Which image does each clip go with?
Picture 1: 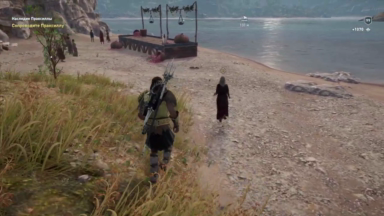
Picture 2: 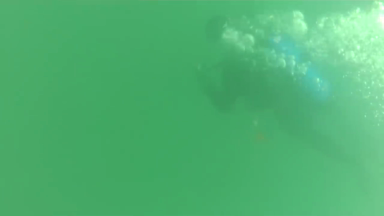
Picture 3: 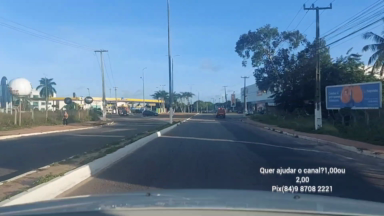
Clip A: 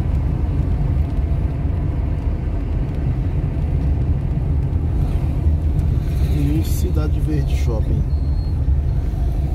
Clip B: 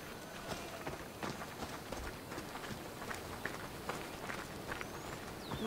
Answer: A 3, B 1